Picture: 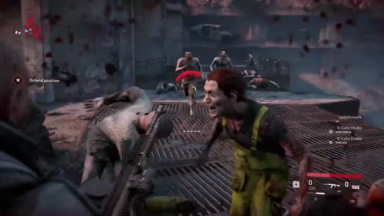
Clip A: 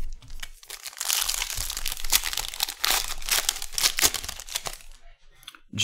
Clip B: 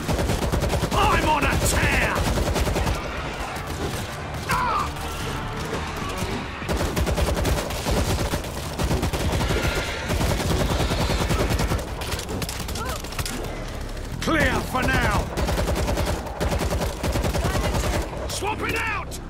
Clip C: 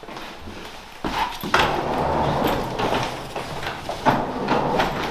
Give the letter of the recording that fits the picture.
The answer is B